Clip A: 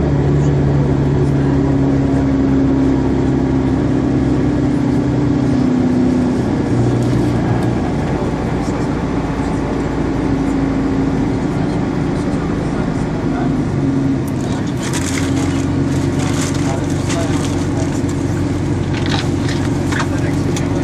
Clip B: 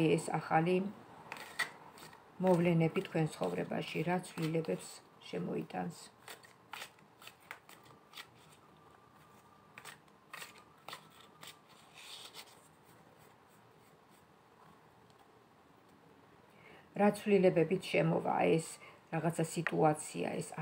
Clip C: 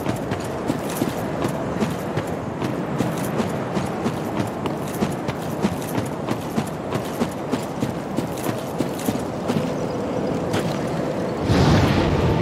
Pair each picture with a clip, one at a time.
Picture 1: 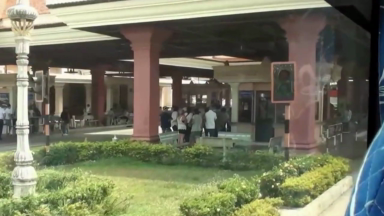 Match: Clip A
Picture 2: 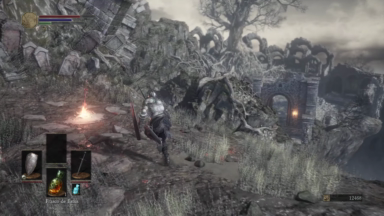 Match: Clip C